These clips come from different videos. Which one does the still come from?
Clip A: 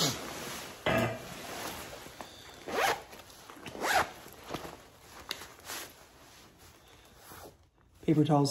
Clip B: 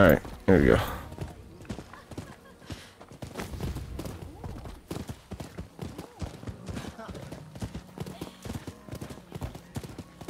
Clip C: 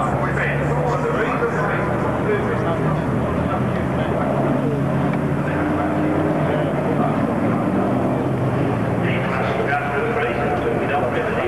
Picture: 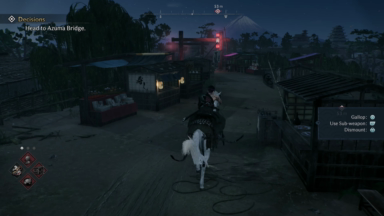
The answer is B